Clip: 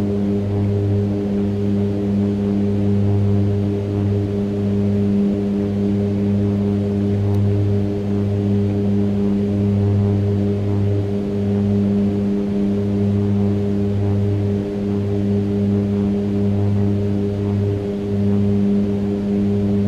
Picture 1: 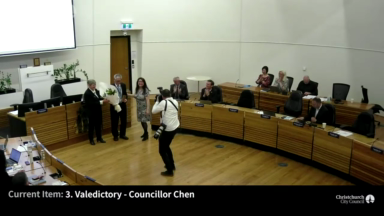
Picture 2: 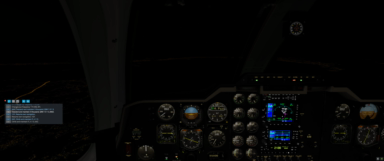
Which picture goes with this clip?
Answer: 2